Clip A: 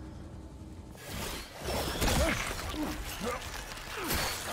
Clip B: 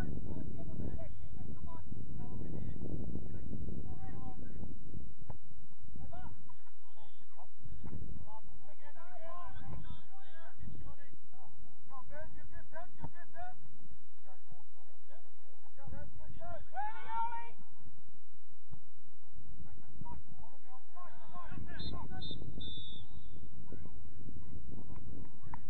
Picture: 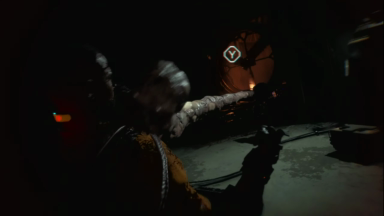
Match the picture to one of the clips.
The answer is A